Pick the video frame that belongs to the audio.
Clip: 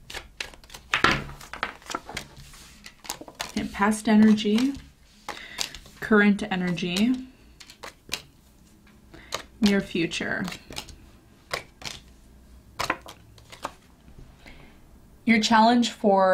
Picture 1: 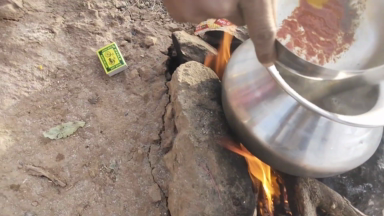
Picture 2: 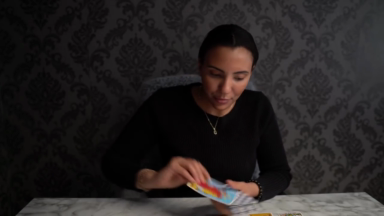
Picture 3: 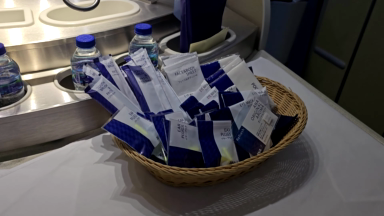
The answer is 2